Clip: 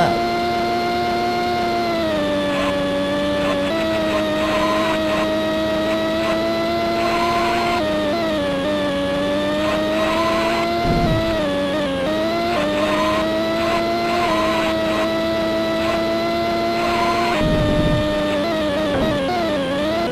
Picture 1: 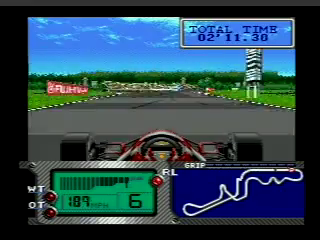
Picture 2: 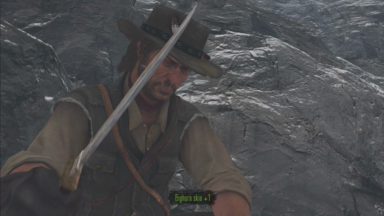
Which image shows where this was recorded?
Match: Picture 1